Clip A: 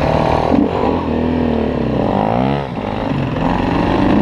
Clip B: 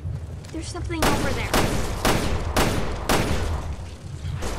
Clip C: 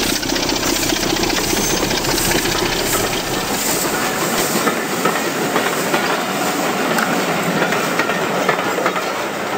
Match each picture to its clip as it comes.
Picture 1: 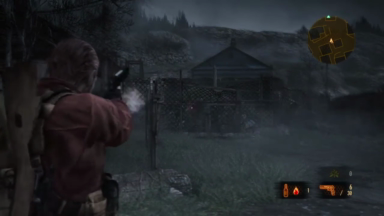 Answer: B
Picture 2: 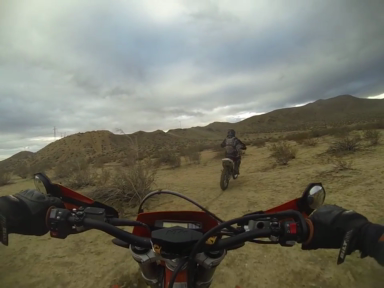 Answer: A